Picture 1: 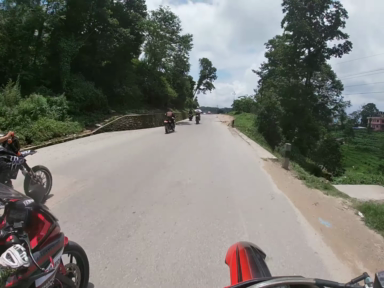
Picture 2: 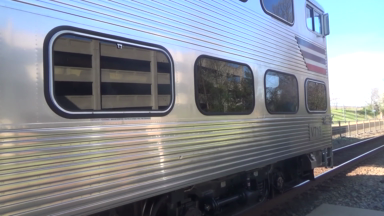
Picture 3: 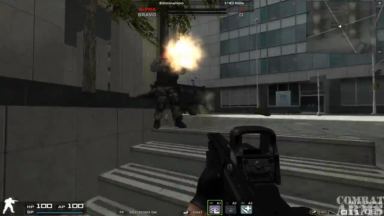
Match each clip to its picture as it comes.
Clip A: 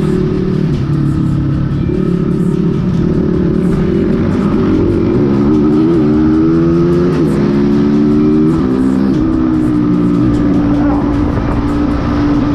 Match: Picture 1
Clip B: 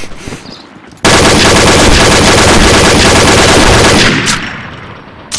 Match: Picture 3